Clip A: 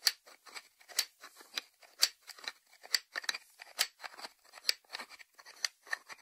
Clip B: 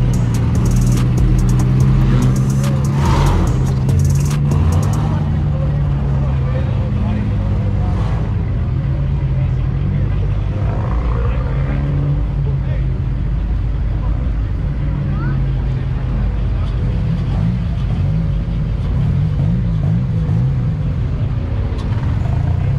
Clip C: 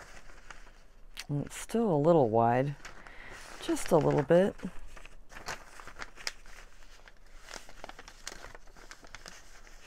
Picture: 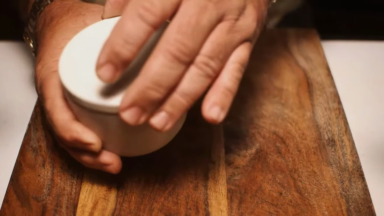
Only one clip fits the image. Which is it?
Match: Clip A